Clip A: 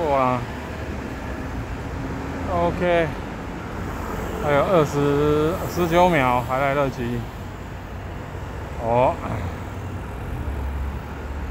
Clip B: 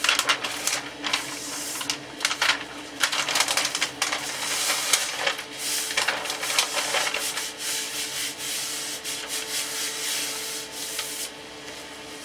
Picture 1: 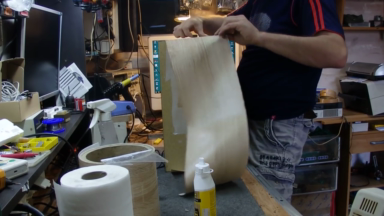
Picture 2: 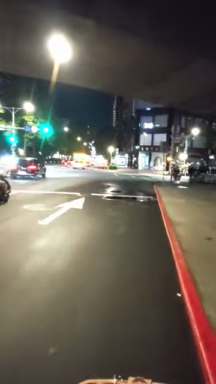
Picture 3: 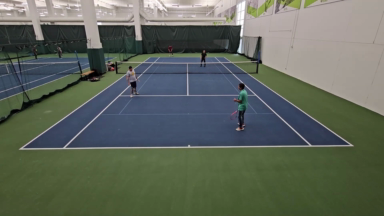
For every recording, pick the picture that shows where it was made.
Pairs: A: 2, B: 1